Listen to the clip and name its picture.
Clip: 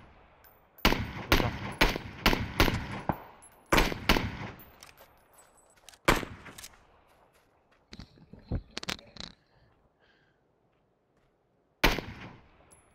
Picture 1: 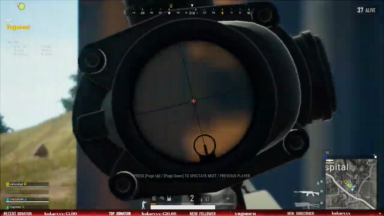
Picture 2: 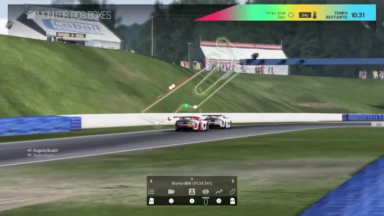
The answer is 1